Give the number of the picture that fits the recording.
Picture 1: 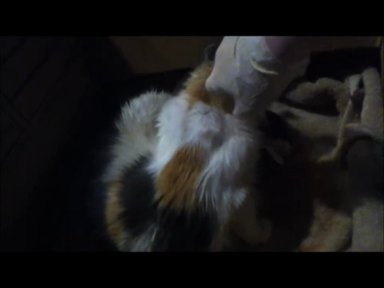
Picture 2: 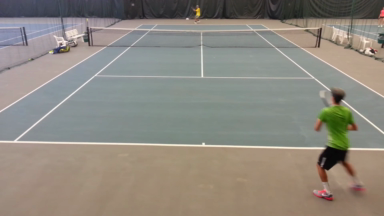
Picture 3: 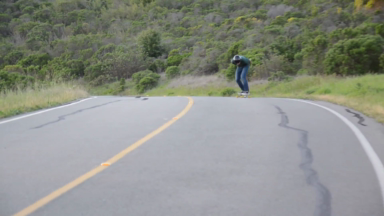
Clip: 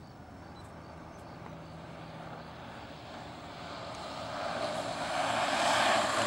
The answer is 3